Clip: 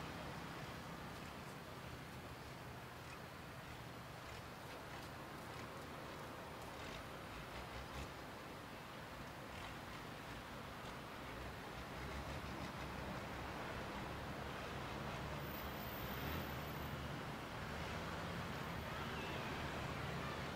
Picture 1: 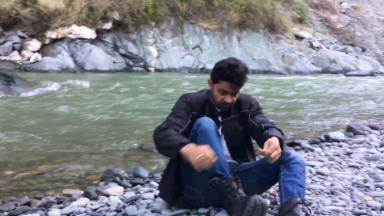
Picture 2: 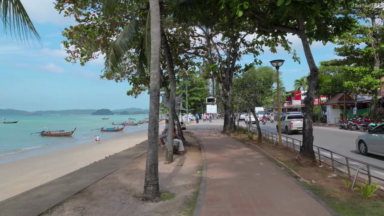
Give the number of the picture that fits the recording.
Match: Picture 2